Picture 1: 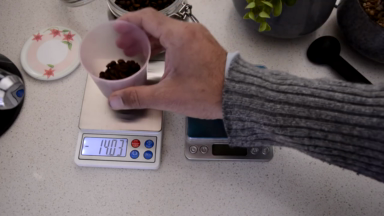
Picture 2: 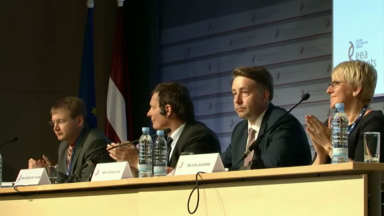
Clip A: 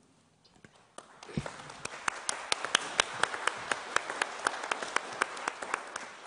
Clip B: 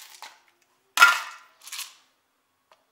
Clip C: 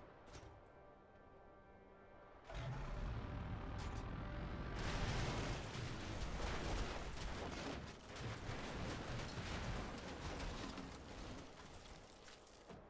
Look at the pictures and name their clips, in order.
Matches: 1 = B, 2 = A